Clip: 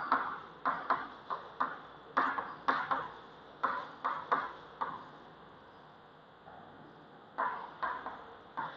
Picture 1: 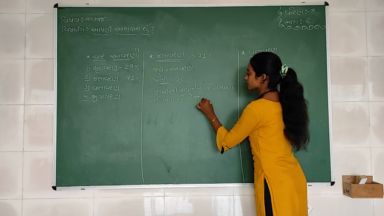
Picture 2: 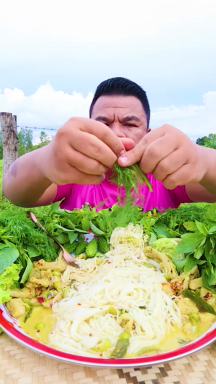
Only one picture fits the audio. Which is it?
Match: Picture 1